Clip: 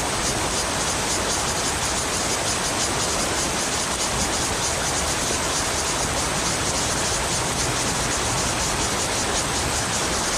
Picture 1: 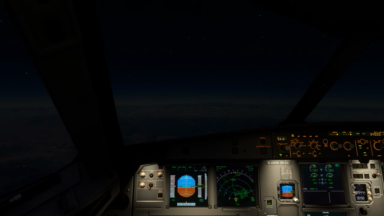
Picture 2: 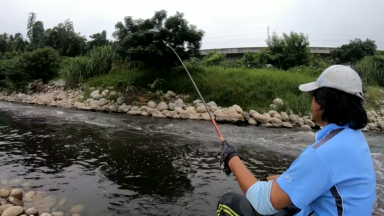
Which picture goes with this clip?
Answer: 2